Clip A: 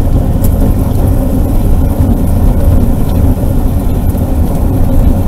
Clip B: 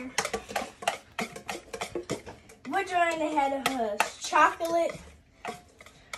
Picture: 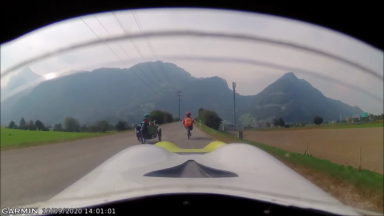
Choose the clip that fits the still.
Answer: A